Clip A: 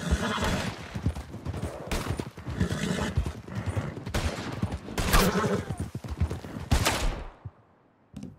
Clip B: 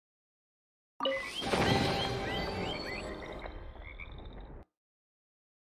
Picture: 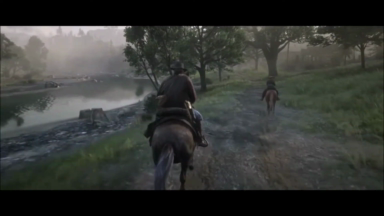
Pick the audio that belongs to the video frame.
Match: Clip A